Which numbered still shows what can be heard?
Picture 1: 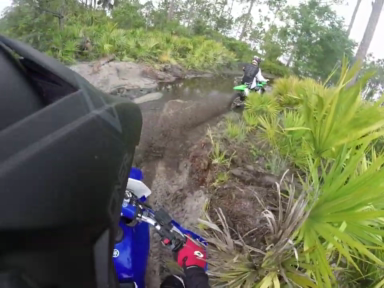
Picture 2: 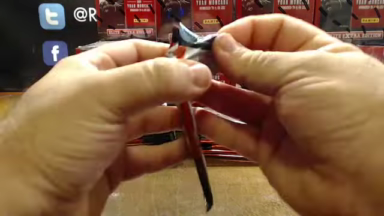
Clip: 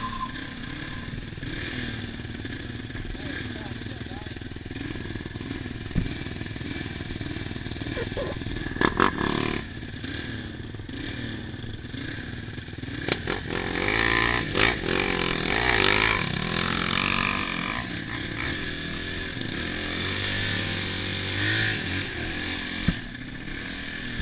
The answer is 1